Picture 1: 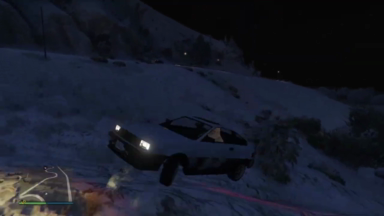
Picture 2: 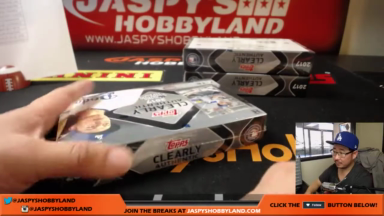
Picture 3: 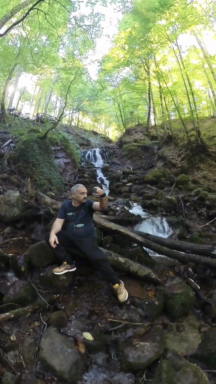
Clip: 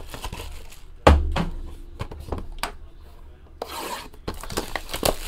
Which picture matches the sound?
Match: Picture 2